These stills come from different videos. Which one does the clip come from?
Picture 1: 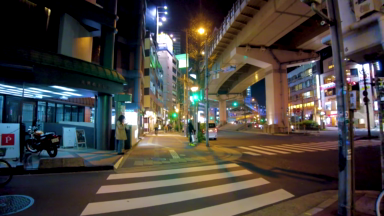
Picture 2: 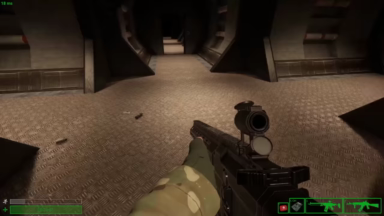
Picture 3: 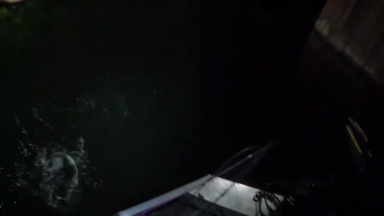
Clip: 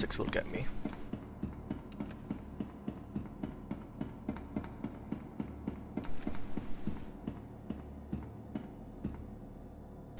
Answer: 2